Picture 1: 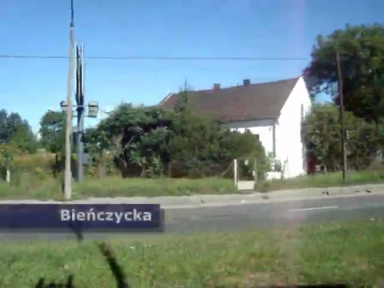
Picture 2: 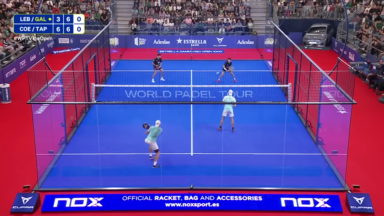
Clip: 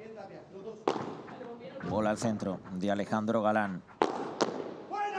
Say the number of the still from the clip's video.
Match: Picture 2